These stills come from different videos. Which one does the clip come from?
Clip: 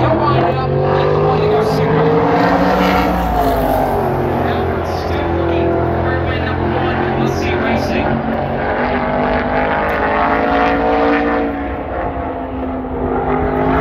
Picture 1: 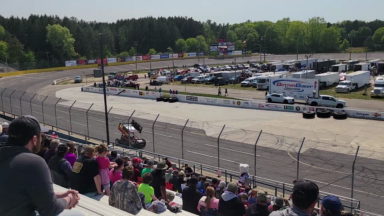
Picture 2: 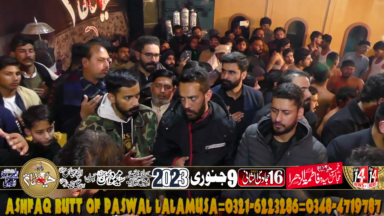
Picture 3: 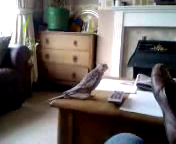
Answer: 1